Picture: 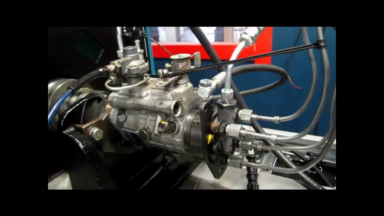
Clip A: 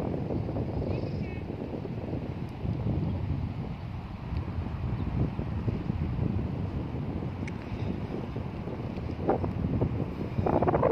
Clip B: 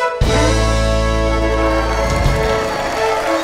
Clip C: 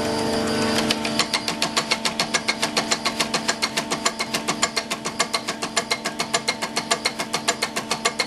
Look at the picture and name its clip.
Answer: C